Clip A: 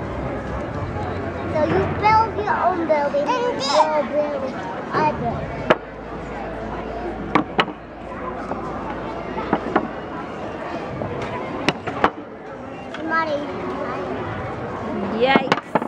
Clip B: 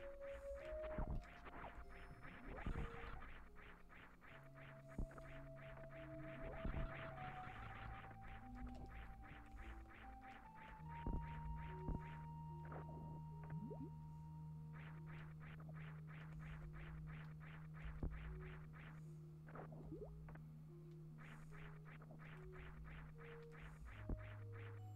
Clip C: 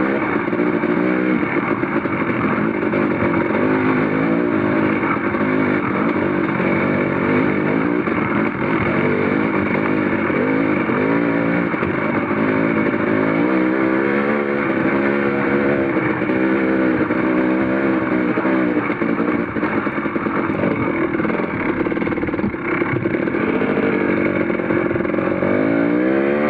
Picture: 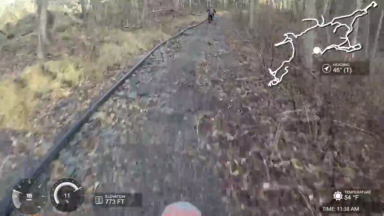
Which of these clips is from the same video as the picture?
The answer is C